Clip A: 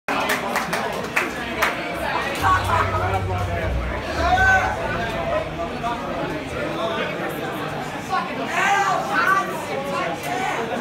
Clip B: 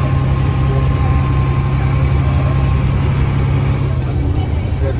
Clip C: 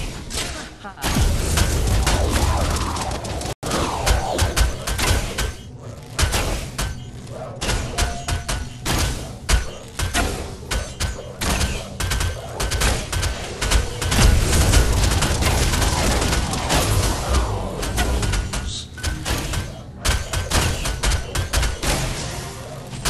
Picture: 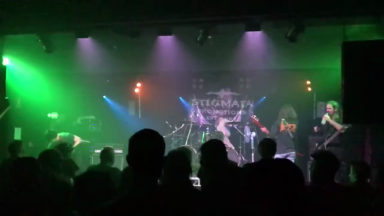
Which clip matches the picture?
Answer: A